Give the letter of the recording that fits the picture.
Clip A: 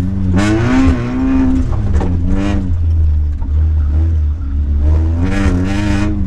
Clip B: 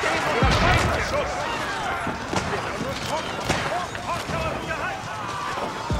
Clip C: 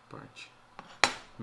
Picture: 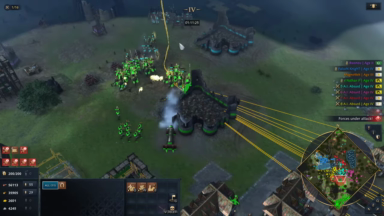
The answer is B